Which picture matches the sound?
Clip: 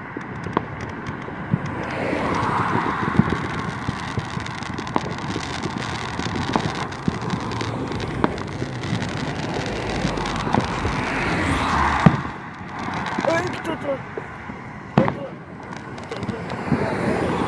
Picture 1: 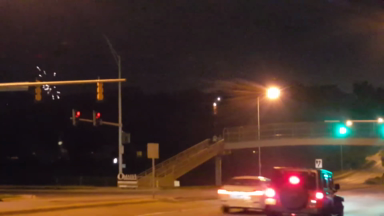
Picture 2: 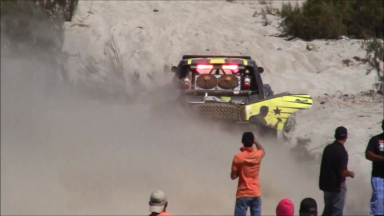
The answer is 1